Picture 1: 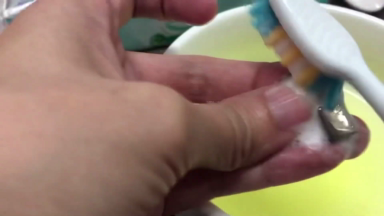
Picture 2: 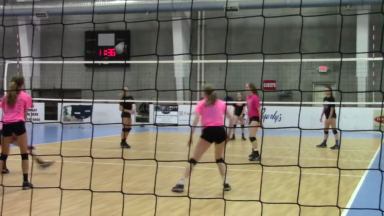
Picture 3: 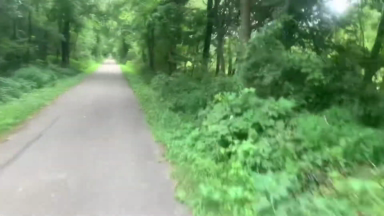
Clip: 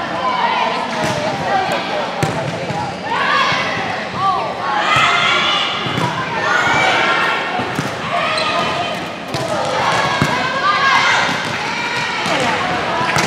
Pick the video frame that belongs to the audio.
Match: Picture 2